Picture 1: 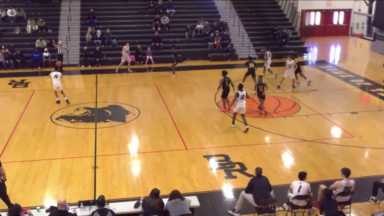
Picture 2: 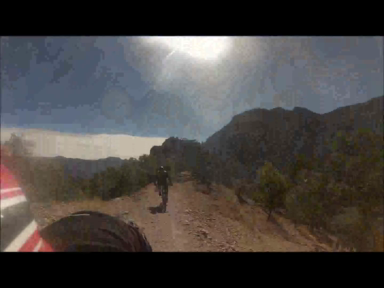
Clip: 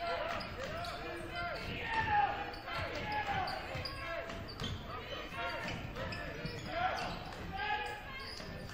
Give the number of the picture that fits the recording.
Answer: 1